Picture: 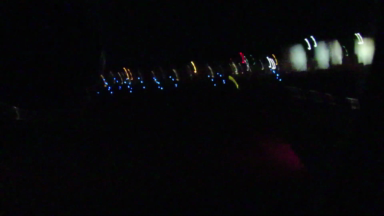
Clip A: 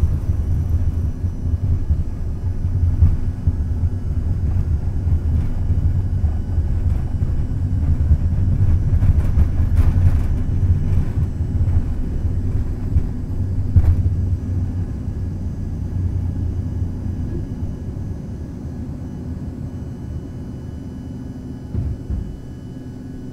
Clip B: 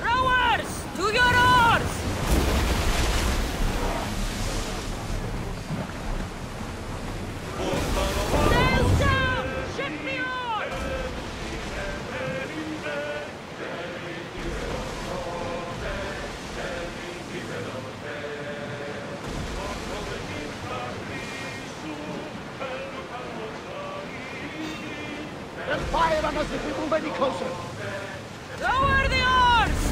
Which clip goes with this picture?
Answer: A